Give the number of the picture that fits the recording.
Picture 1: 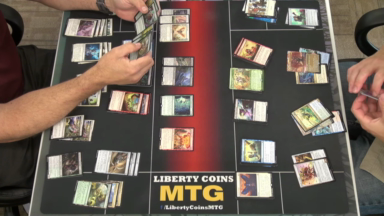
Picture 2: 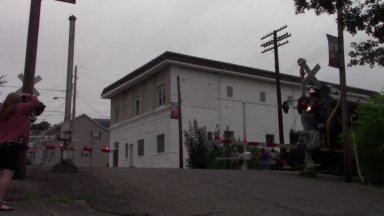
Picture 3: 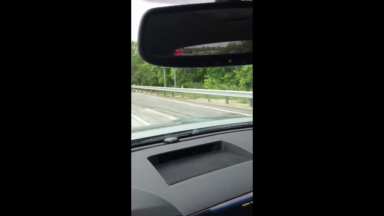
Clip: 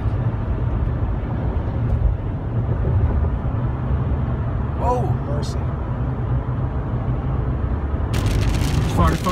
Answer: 3